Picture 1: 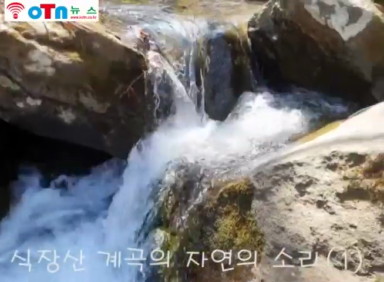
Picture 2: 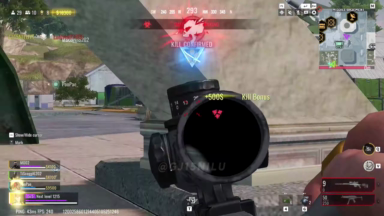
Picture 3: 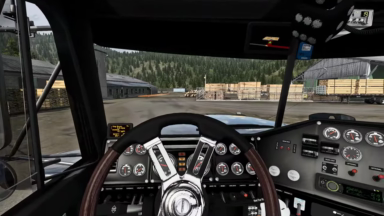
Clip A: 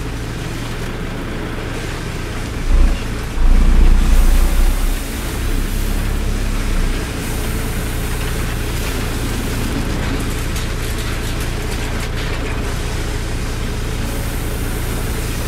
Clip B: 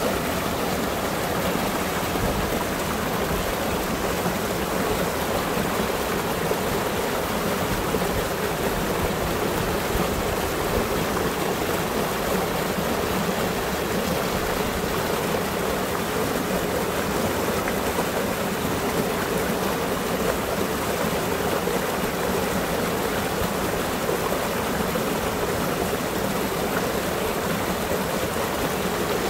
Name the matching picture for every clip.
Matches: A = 3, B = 1